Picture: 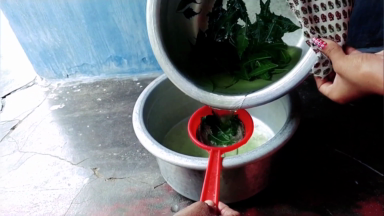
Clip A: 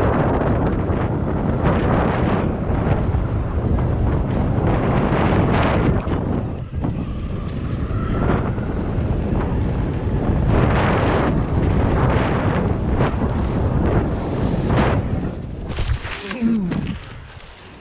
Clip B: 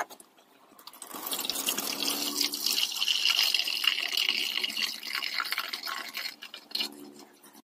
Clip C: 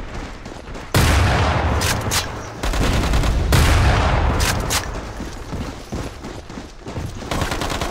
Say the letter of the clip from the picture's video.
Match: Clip B